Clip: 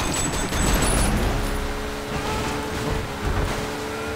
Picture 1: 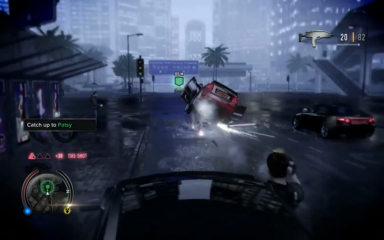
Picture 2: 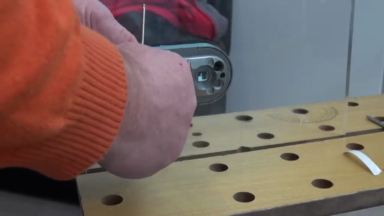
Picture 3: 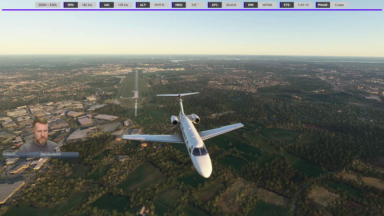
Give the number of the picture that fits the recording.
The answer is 1